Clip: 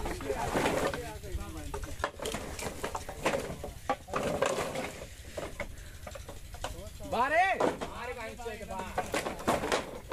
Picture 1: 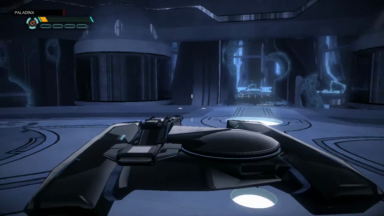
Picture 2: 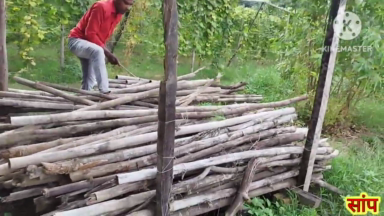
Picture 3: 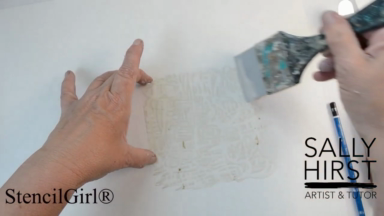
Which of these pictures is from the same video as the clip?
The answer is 2